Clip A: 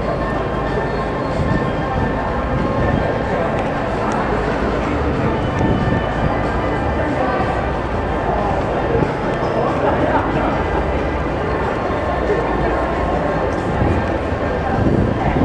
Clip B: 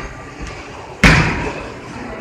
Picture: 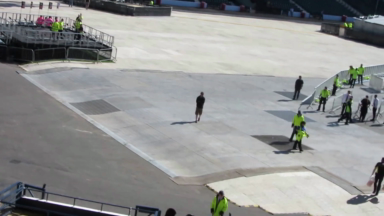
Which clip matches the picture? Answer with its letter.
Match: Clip A